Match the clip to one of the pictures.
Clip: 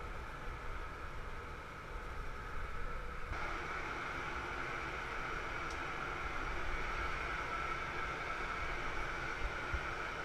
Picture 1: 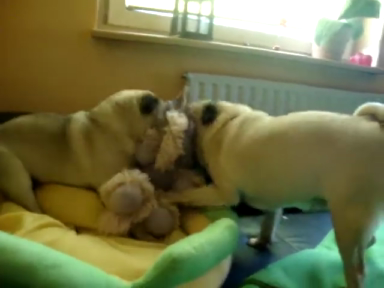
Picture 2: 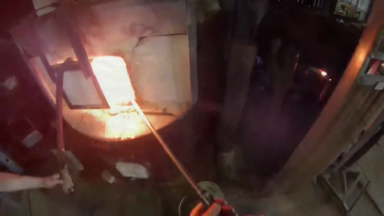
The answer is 2